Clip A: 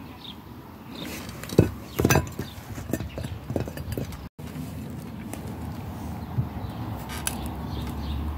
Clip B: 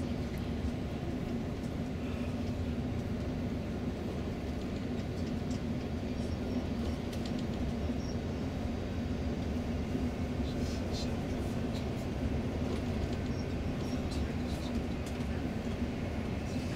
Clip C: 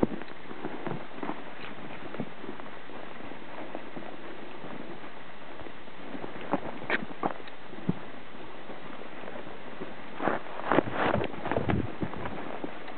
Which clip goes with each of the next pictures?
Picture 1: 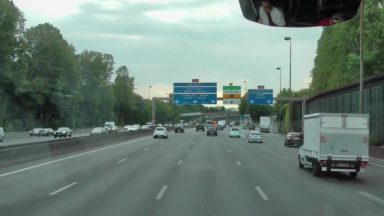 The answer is B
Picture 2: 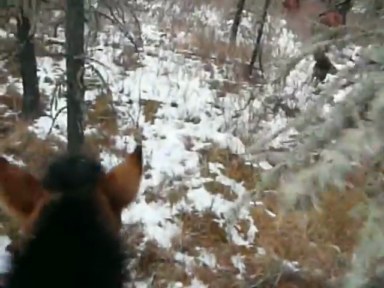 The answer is C